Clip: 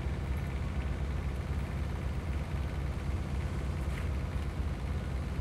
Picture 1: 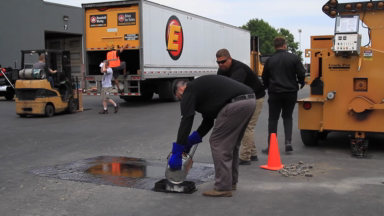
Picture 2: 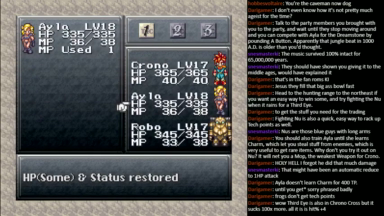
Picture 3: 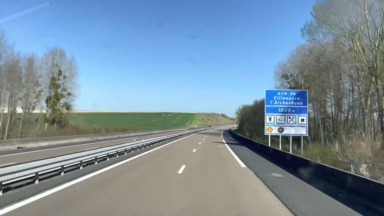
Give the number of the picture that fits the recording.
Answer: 1